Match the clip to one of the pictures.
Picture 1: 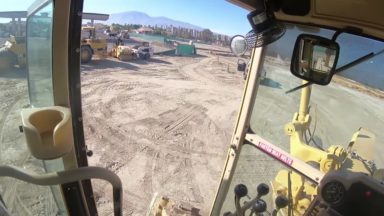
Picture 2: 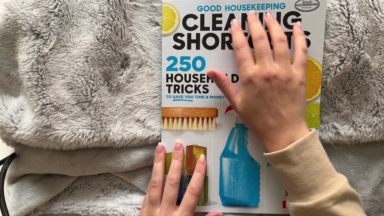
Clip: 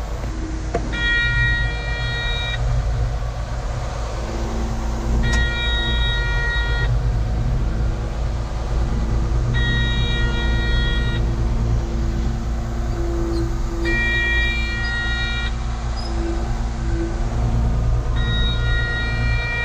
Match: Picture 1